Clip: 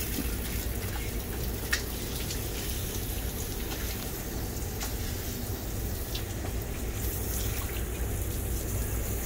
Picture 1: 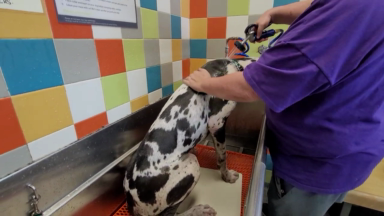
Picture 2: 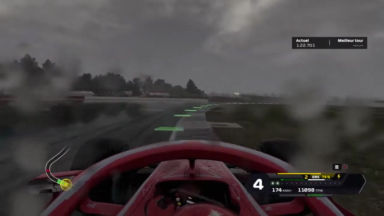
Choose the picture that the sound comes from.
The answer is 1